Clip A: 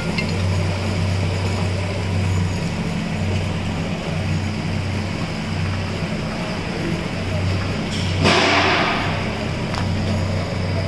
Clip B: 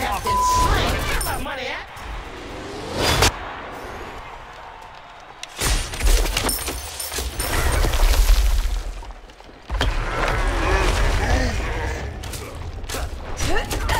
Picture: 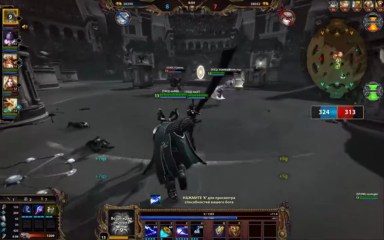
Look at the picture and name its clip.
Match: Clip B